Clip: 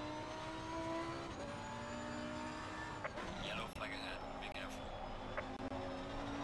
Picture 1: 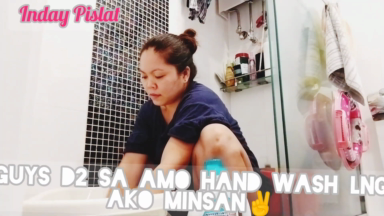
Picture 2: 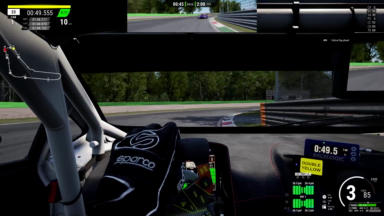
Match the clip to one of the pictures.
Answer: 2